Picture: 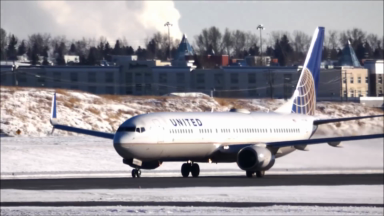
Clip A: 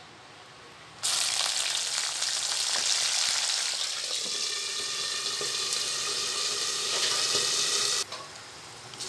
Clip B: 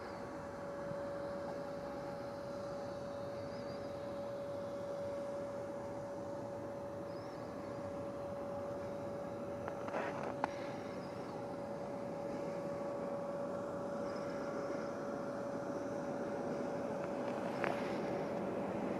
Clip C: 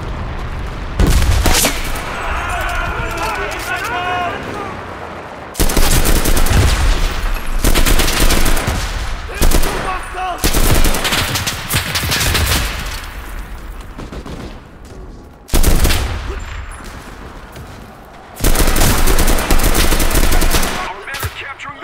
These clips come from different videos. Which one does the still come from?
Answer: B